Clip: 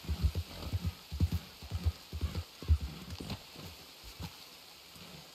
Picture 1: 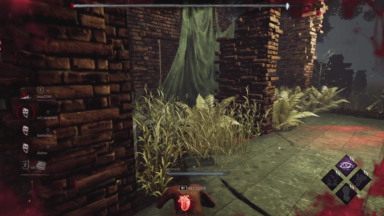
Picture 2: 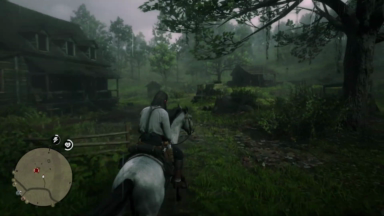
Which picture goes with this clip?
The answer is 2